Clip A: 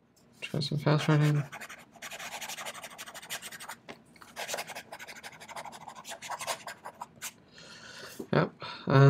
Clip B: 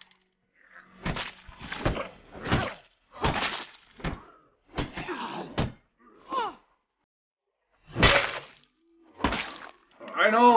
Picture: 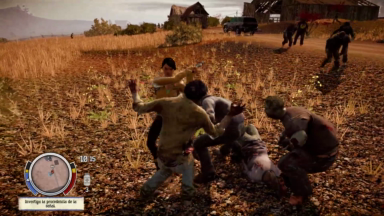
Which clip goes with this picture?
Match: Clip B